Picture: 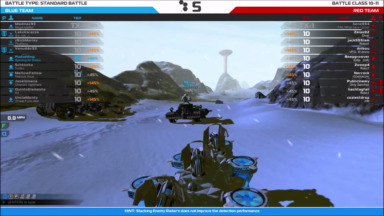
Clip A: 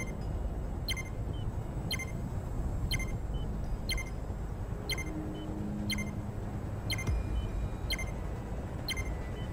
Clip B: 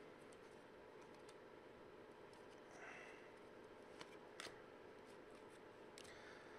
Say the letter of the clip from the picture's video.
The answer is A